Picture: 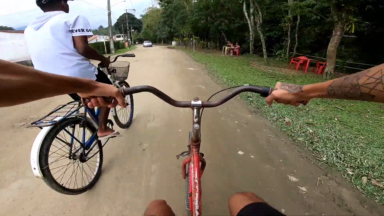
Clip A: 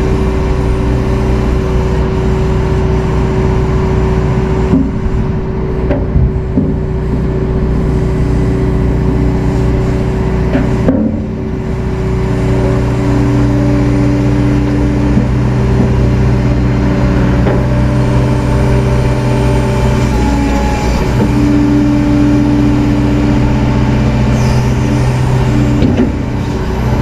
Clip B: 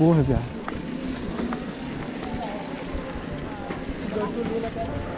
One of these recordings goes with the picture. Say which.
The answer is B